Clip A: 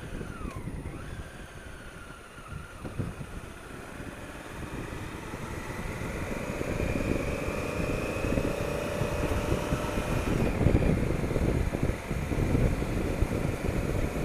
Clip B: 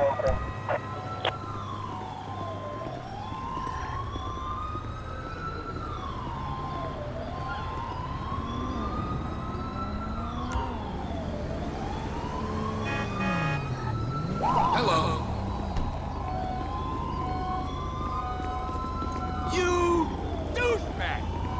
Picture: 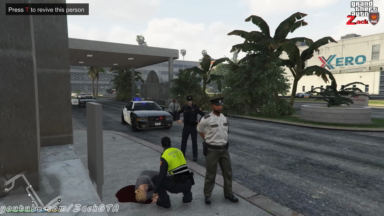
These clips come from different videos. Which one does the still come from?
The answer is B